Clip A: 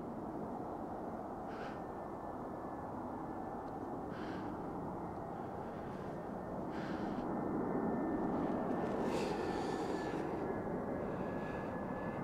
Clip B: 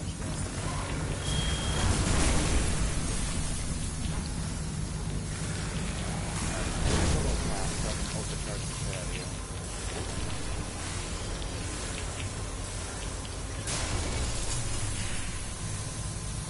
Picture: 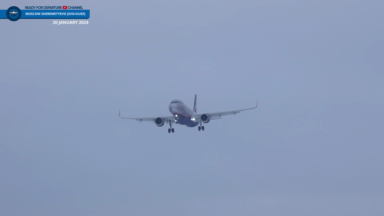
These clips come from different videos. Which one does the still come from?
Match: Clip A